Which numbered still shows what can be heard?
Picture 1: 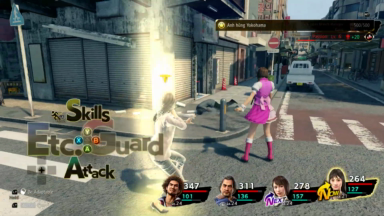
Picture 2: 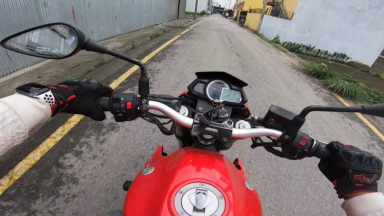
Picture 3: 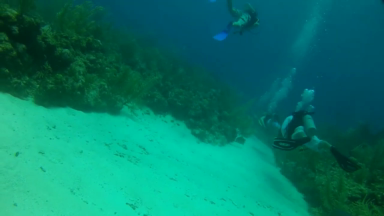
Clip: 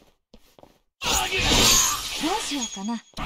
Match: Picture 1